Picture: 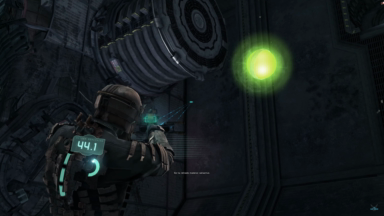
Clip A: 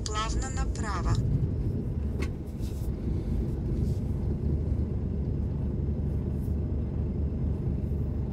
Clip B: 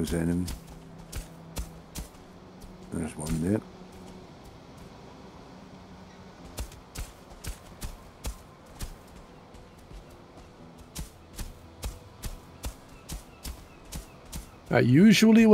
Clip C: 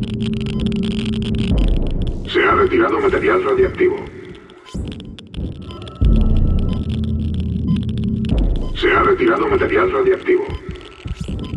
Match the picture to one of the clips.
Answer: C